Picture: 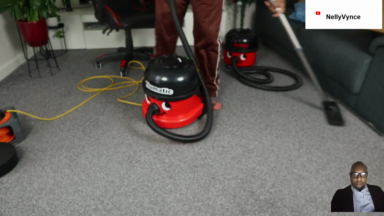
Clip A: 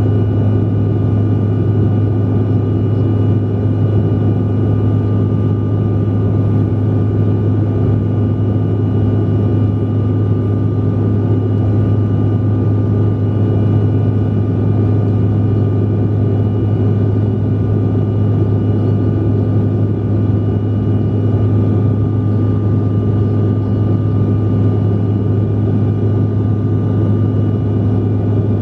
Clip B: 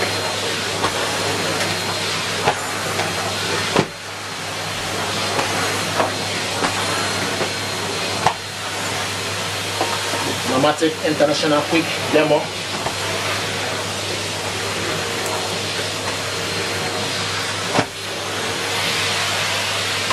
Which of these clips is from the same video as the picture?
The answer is B